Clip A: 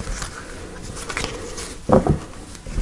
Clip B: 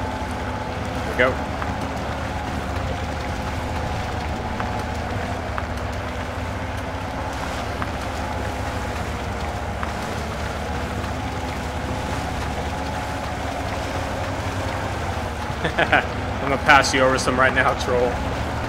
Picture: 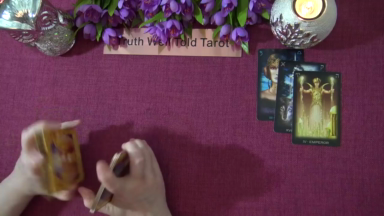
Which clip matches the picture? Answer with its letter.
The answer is A